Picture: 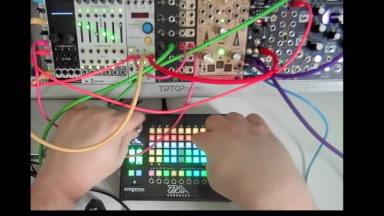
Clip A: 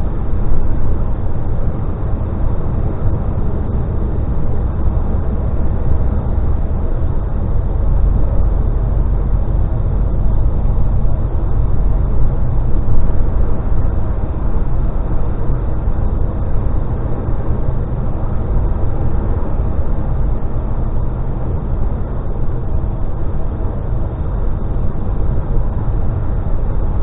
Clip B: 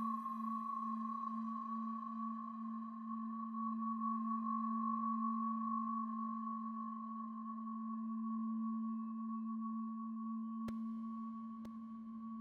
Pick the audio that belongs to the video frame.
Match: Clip B